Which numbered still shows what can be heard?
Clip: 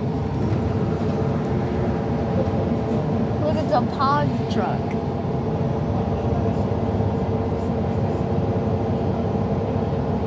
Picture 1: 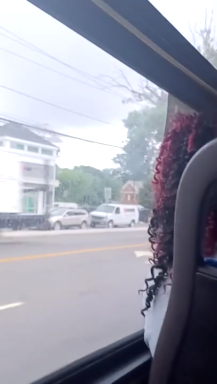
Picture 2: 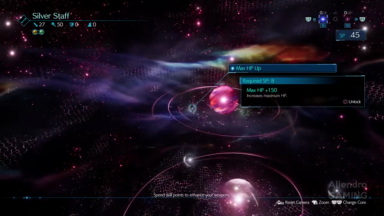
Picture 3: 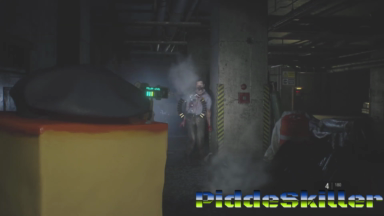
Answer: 1